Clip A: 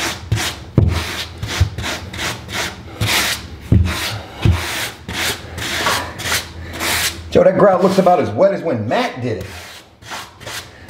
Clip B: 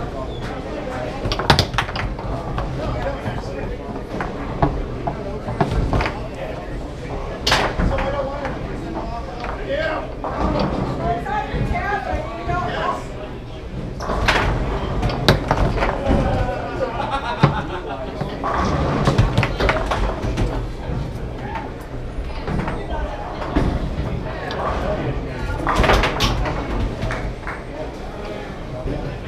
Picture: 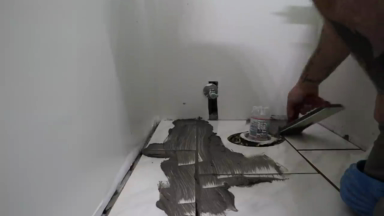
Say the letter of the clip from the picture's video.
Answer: A